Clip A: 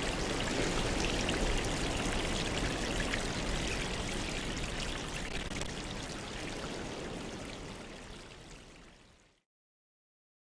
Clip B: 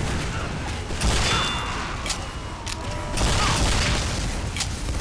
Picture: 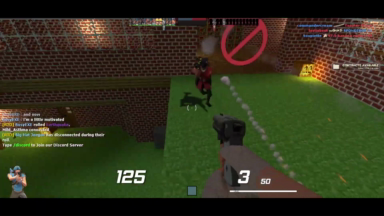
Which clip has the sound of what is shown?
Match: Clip B